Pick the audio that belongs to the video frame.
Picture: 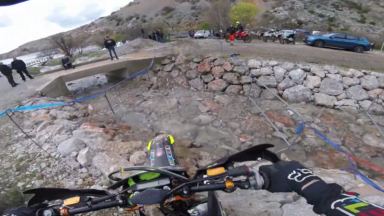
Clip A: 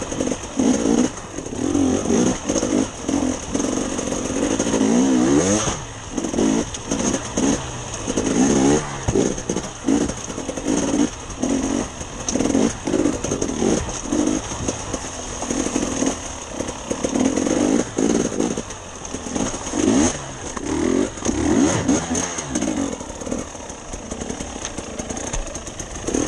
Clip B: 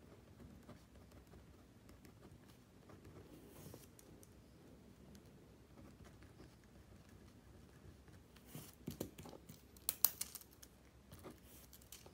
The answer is A